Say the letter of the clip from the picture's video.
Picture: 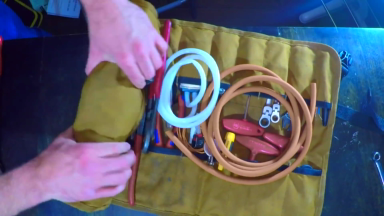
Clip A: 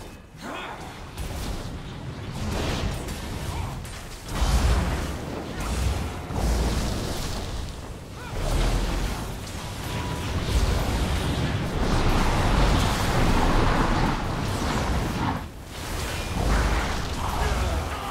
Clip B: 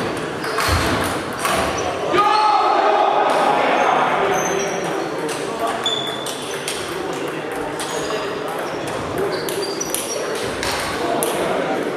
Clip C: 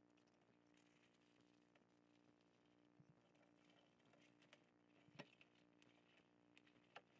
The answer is C